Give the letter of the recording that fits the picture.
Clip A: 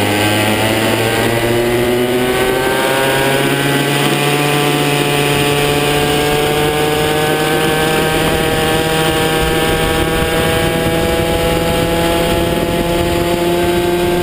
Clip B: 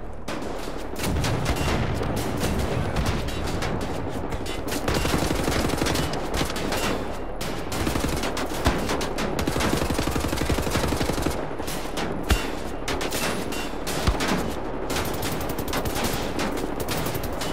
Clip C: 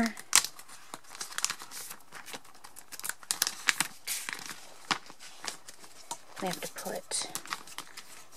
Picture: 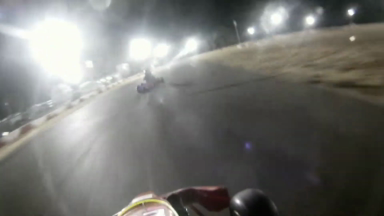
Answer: A